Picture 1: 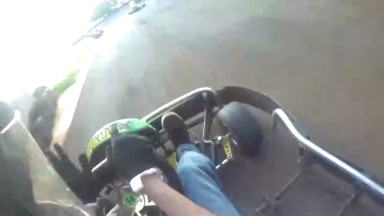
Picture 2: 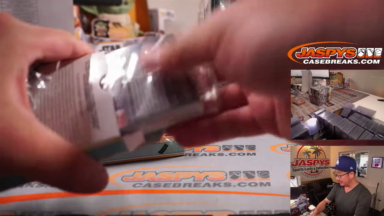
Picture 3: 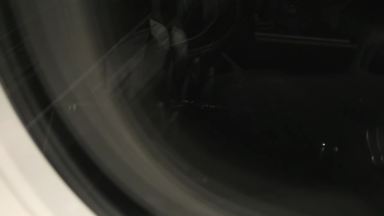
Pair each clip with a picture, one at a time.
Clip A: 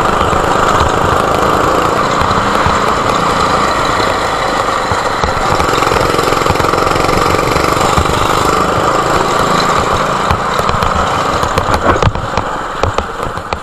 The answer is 1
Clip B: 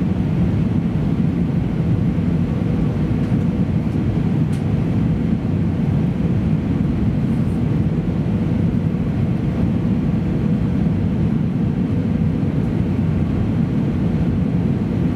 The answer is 3